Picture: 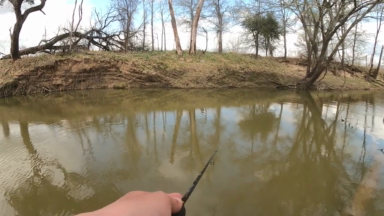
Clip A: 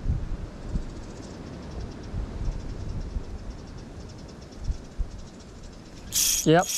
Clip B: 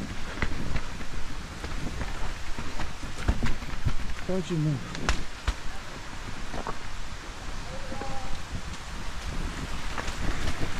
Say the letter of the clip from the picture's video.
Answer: A